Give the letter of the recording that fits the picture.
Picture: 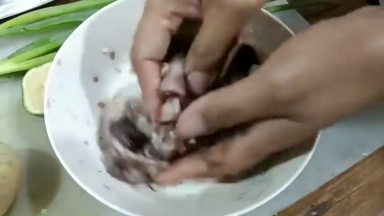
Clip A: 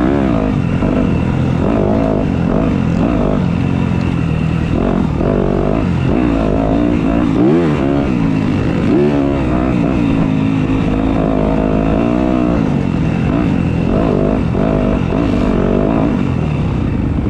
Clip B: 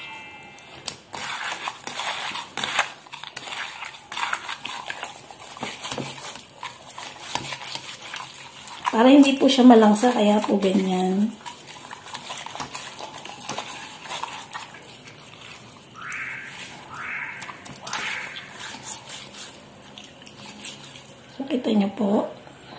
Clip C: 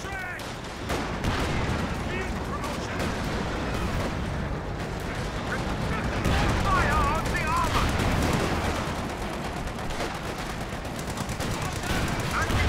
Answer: B